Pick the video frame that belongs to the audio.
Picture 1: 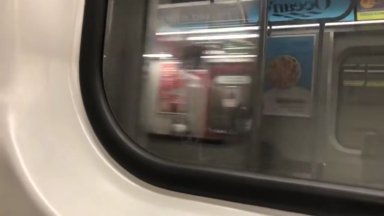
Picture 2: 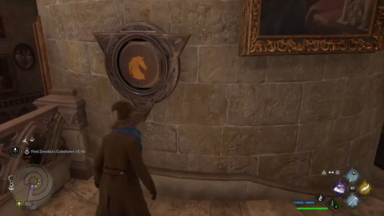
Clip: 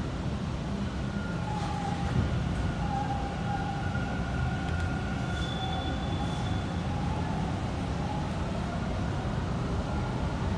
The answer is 1